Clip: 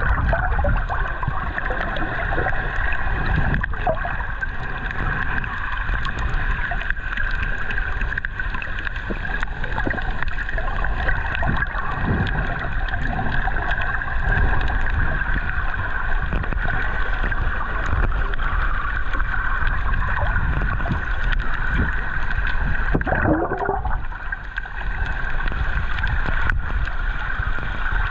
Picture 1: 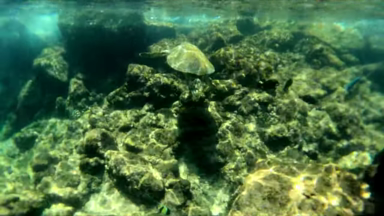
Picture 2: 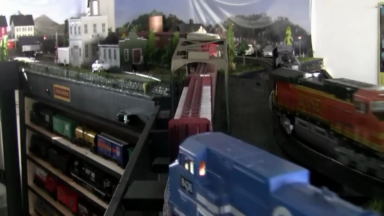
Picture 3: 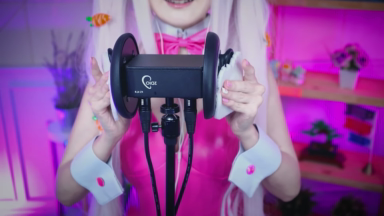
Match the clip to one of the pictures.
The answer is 1